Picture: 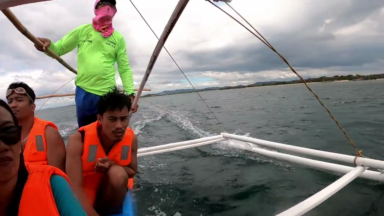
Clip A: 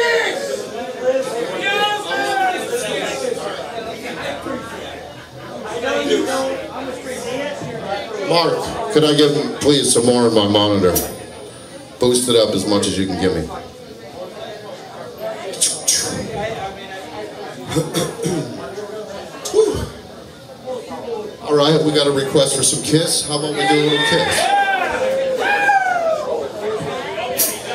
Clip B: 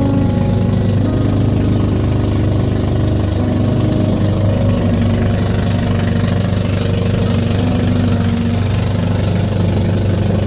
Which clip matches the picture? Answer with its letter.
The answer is B